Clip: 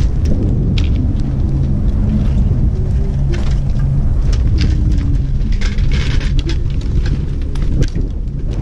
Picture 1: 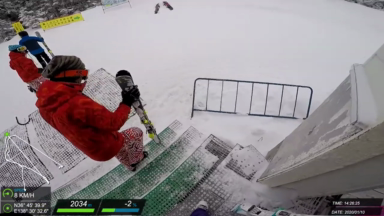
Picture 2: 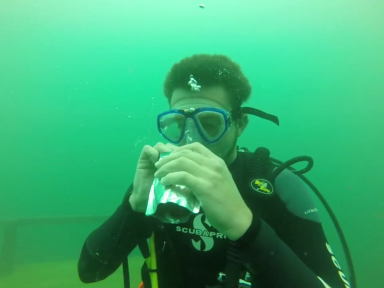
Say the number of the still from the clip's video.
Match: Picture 1